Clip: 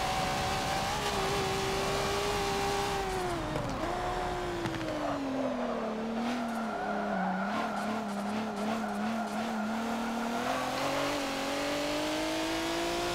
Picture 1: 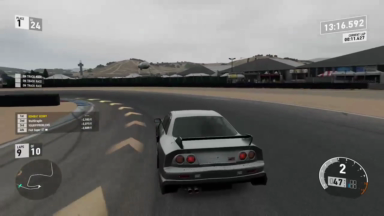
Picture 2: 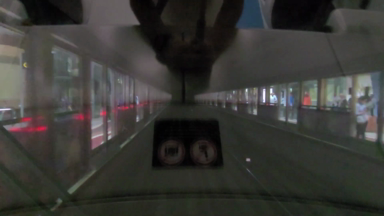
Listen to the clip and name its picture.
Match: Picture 1